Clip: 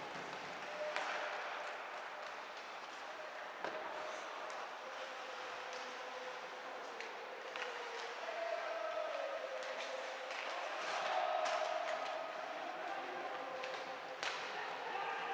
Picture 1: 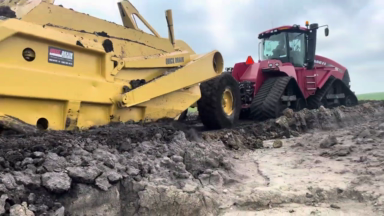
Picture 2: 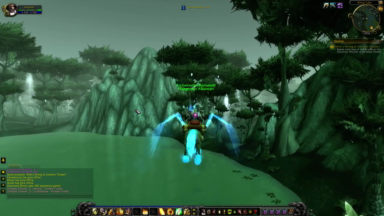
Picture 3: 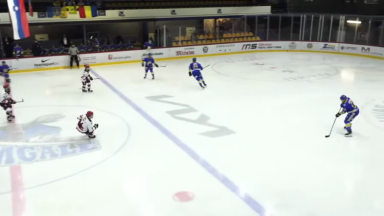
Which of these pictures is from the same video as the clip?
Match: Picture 3